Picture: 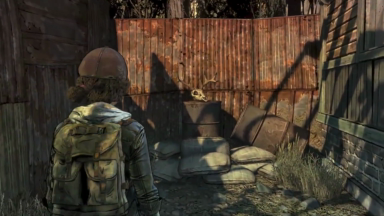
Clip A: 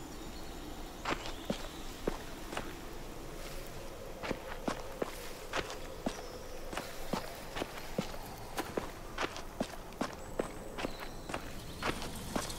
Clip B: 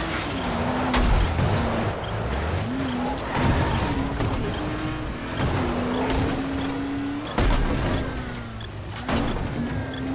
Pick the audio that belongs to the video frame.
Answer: A